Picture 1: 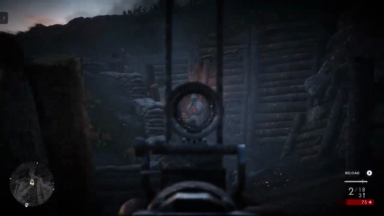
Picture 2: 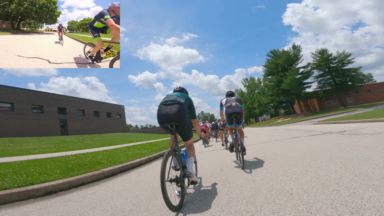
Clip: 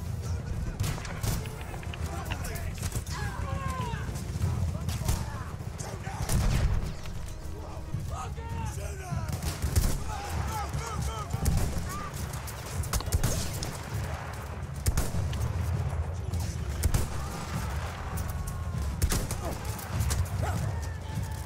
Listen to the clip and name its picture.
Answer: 1